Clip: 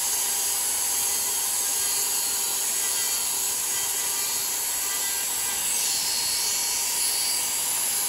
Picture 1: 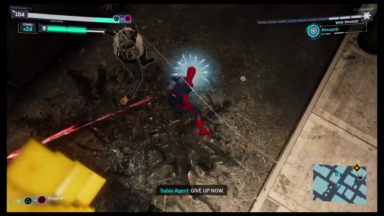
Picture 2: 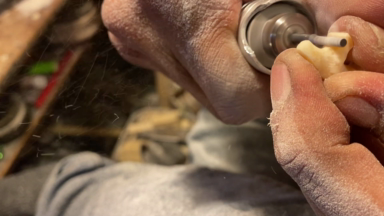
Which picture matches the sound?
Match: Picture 2